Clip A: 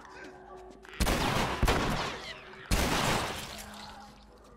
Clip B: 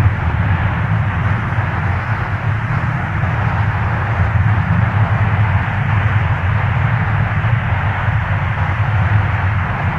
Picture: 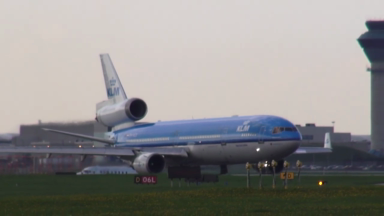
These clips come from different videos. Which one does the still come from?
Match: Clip B